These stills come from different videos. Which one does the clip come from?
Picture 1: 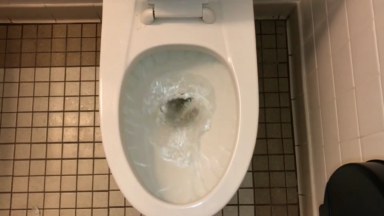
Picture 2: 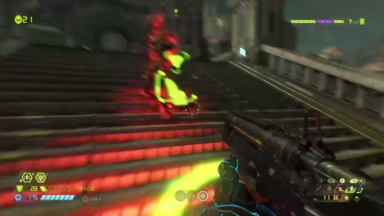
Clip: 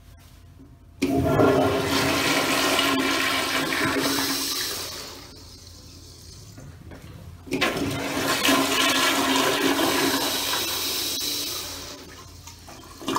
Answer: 1